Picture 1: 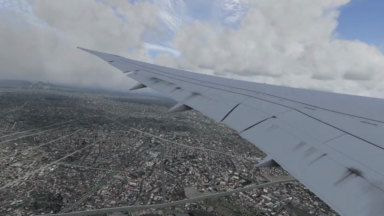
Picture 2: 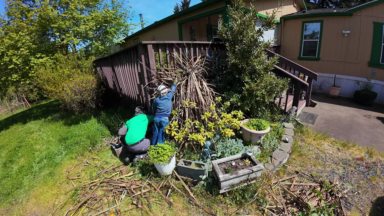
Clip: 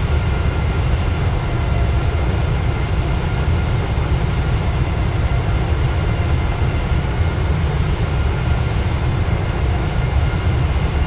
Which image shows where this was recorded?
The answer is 1